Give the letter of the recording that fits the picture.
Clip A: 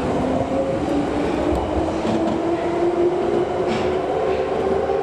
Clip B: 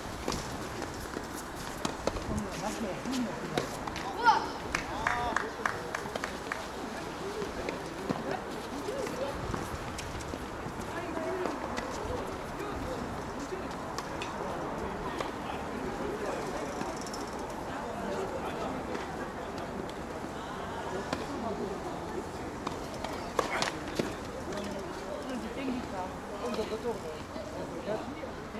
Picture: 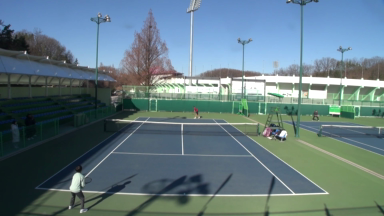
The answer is B